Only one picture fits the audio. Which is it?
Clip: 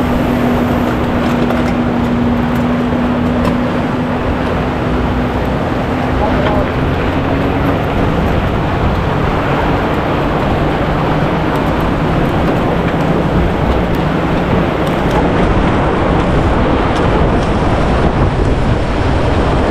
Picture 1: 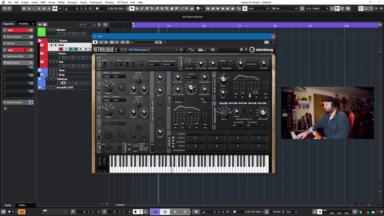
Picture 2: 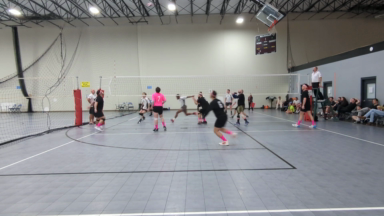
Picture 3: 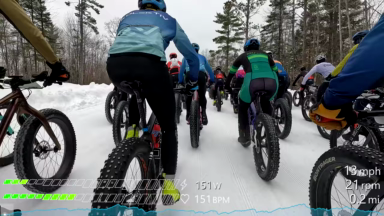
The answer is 3